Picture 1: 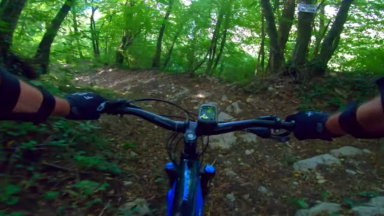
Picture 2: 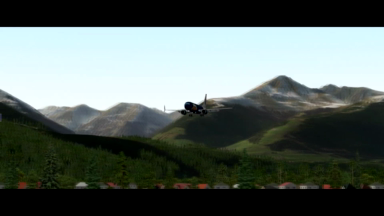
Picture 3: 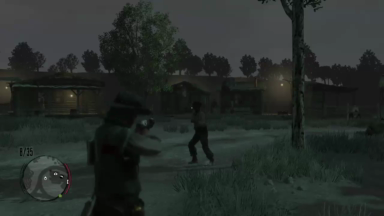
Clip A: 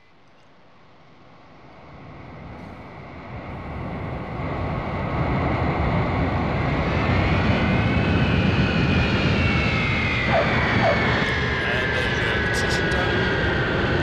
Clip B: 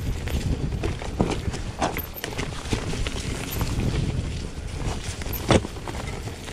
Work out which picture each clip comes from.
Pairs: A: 2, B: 1